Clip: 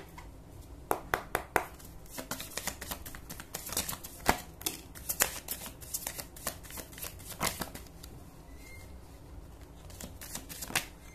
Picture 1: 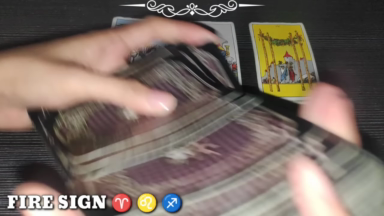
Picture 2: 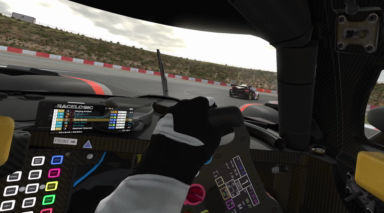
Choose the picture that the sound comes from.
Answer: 1